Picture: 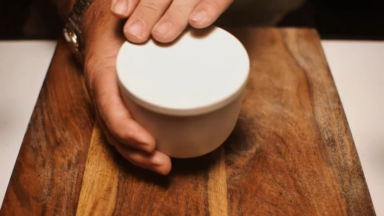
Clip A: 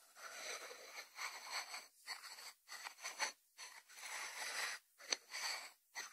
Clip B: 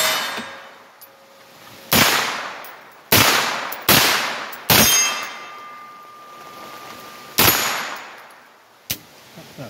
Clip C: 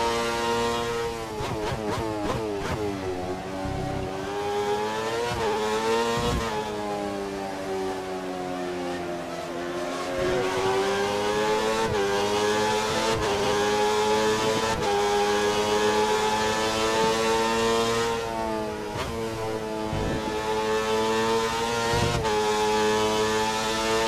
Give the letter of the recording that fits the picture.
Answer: A